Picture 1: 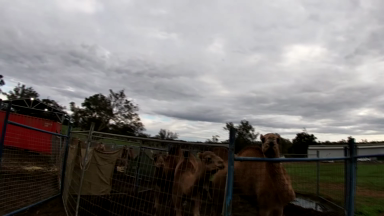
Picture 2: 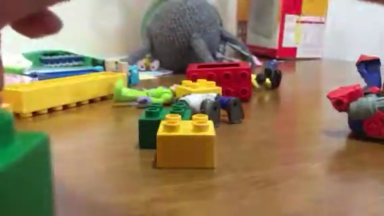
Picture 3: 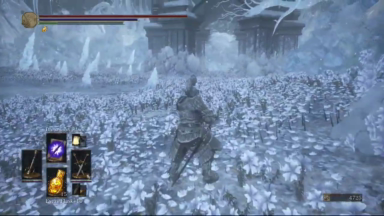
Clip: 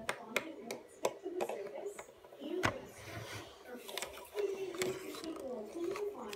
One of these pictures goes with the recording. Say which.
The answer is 2